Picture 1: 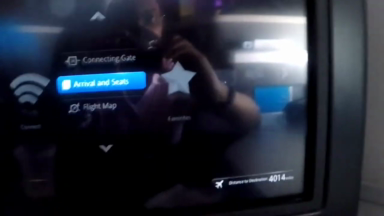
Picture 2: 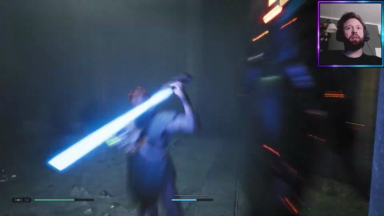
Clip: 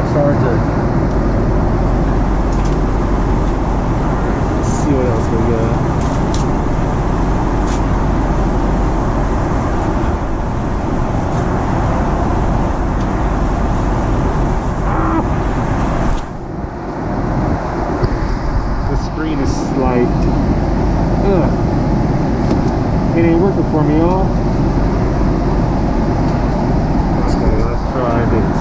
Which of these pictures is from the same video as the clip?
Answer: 1